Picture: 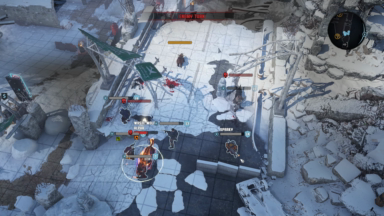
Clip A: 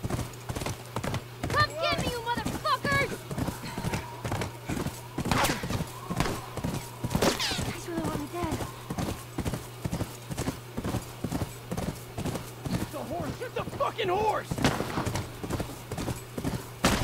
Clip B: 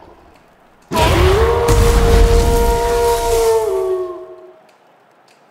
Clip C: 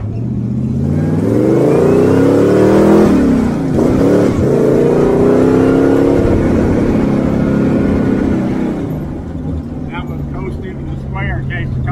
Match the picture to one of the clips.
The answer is B